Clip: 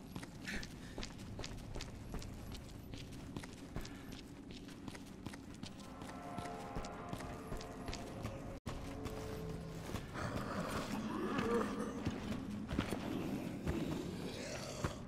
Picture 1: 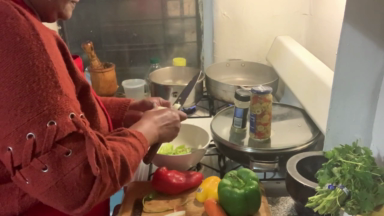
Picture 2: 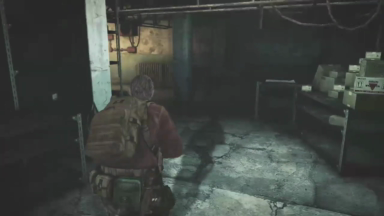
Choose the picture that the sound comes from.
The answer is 2